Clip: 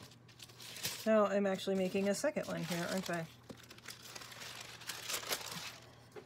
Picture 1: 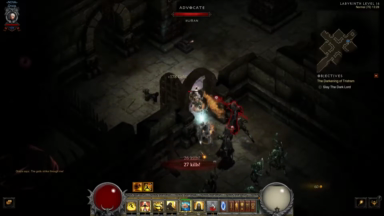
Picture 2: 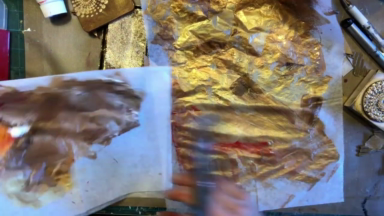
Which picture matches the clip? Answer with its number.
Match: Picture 2